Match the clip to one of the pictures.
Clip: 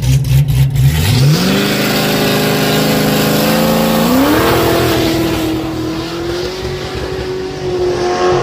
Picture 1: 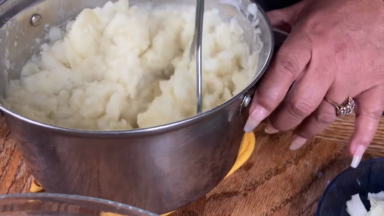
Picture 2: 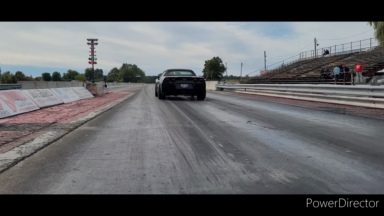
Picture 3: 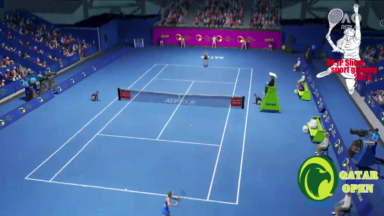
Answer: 2